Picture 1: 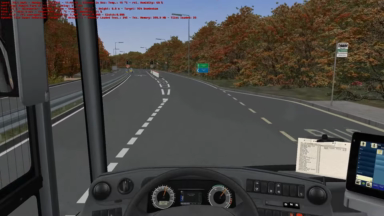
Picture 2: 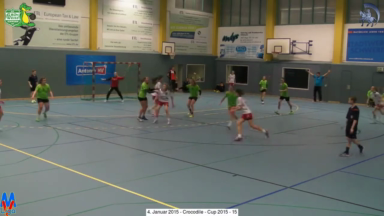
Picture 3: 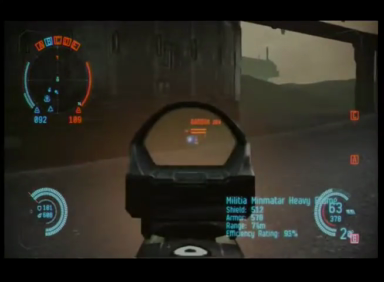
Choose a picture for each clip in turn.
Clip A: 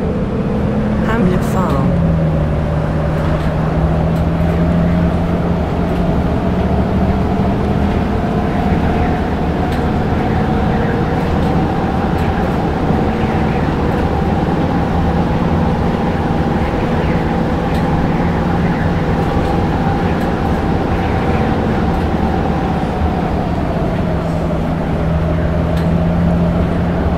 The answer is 1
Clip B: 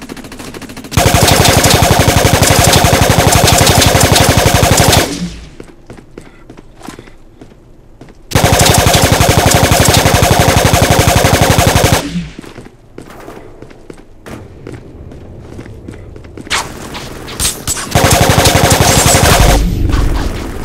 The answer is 3